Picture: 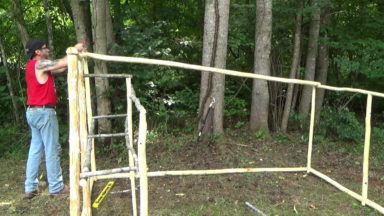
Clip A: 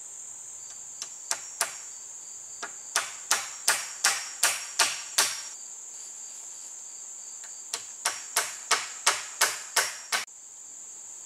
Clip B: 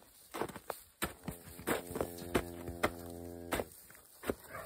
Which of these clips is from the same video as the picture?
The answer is A